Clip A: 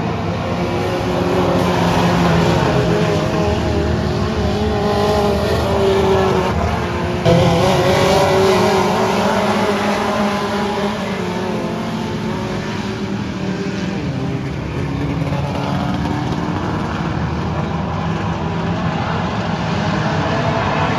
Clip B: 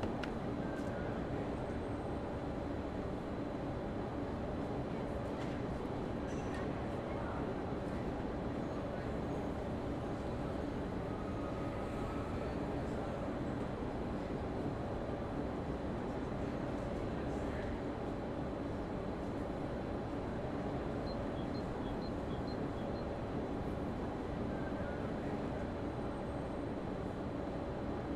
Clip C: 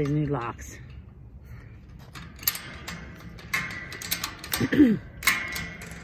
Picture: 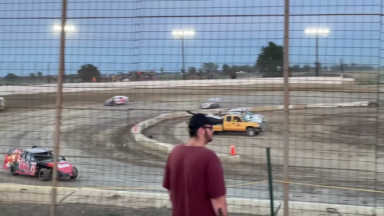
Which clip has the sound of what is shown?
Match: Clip A